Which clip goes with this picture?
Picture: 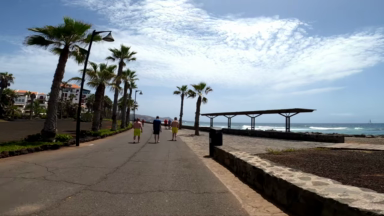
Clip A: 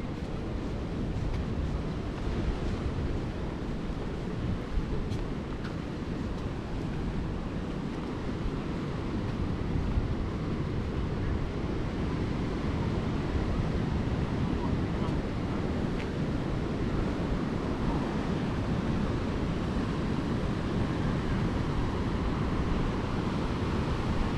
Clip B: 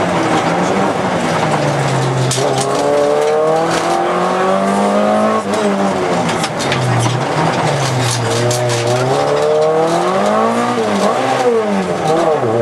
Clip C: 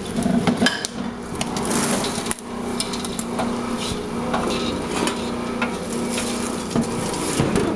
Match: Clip A